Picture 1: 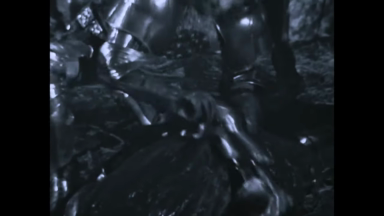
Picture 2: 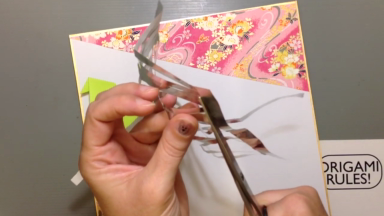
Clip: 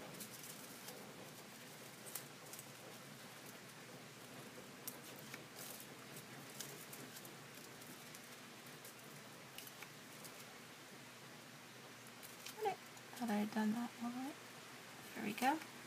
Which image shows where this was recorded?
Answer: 2